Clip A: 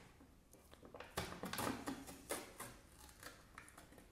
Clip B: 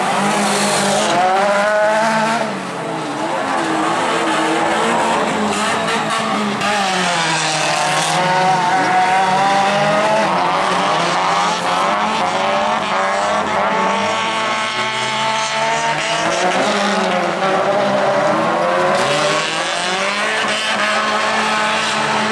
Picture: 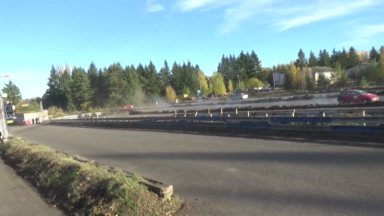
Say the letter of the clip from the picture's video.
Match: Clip B